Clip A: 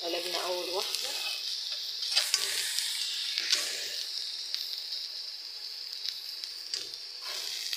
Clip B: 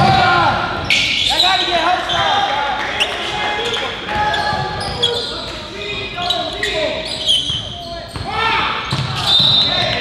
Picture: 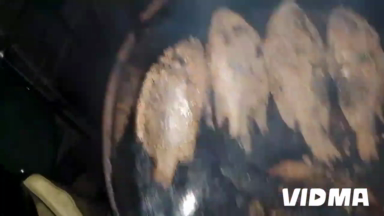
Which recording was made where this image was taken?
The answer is A